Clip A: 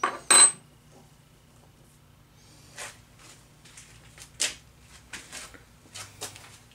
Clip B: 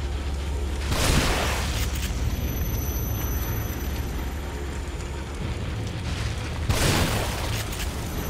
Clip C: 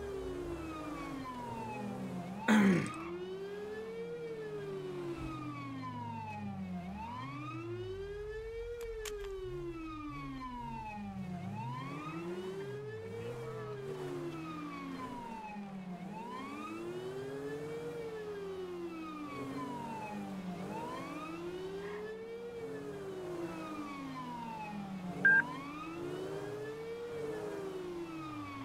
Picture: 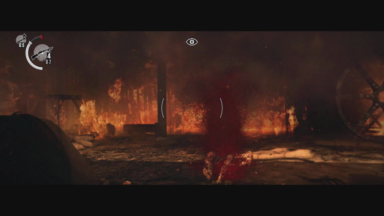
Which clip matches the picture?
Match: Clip B